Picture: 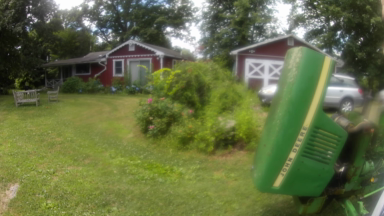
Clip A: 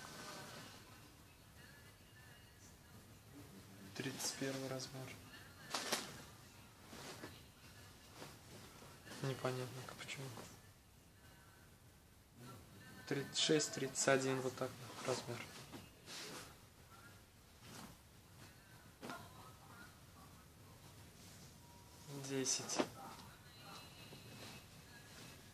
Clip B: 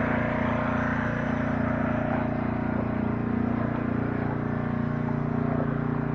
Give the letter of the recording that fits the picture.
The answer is B